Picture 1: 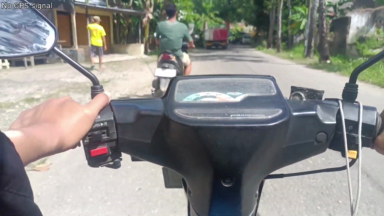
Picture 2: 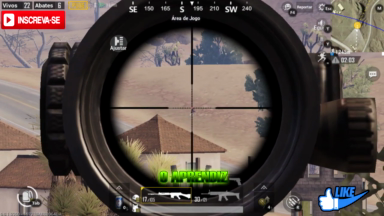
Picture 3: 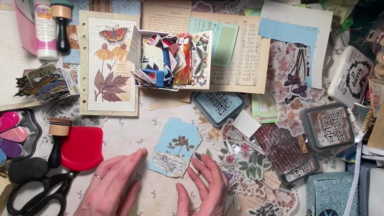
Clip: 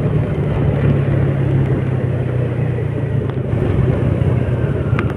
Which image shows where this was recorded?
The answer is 1